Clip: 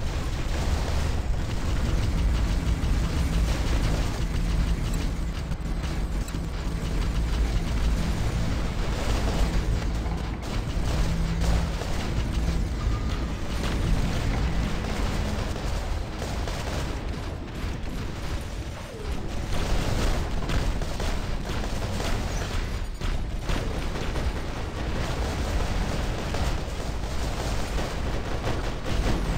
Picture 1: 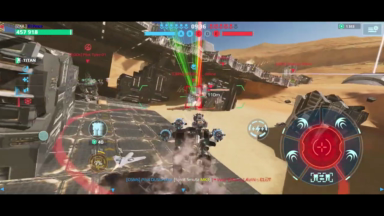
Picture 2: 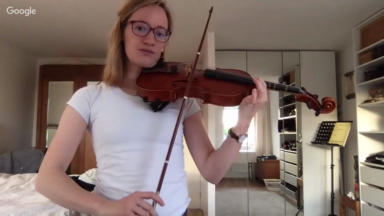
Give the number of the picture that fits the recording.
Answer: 1